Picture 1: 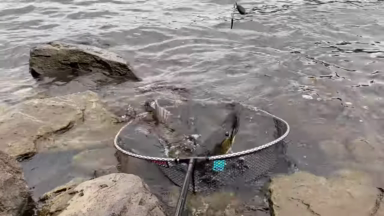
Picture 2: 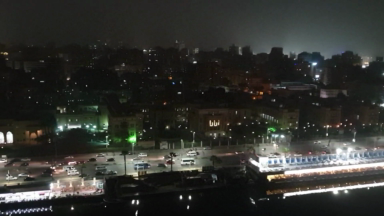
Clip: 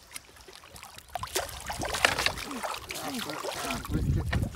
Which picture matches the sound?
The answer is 1